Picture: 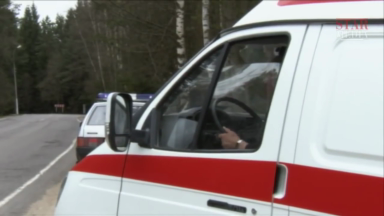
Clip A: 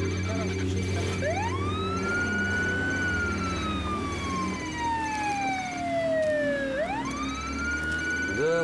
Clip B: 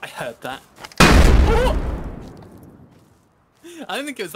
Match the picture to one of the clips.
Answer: A